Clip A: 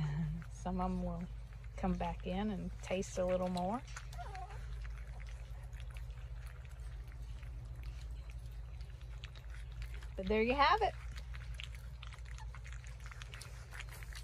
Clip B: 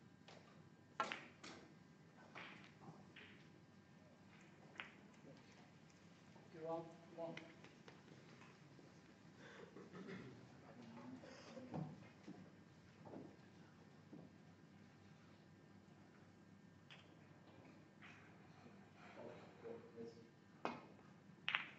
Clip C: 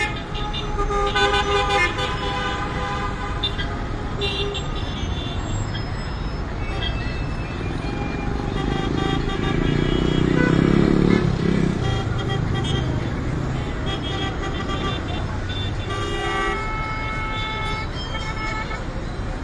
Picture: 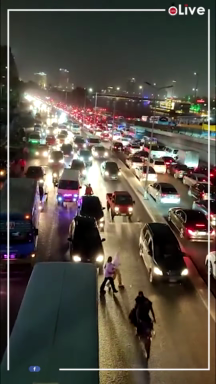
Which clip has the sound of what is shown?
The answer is C